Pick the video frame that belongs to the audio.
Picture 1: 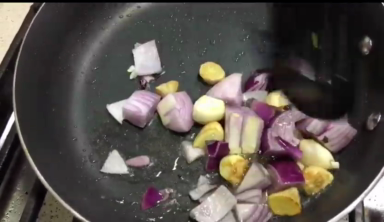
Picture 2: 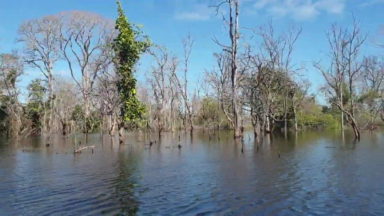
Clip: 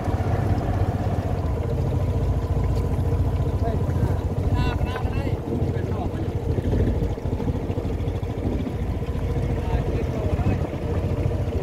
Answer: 2